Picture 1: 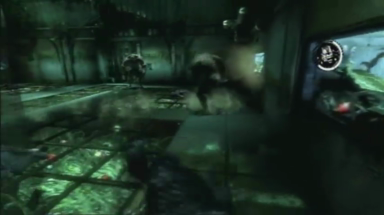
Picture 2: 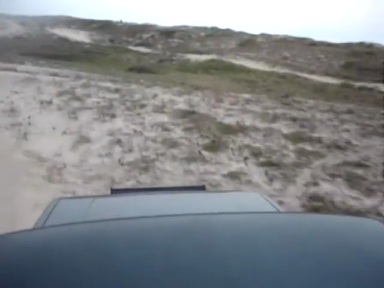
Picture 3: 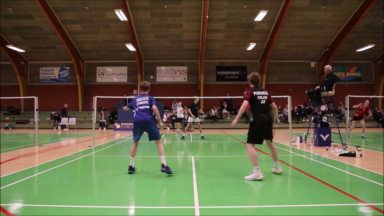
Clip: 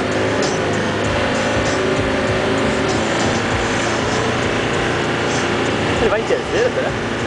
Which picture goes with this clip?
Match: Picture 2